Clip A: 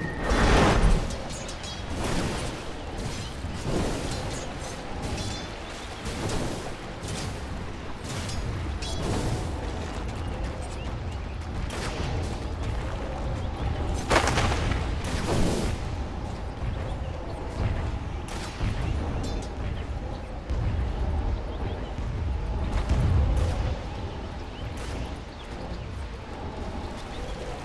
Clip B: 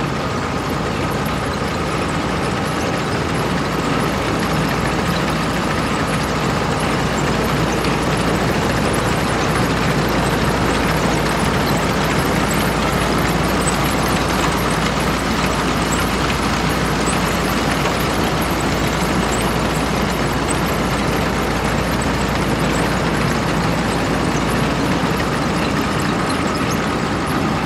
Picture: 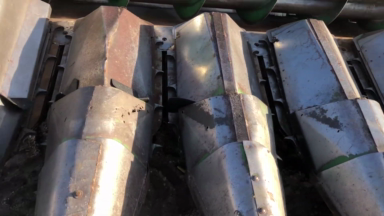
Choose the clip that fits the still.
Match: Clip B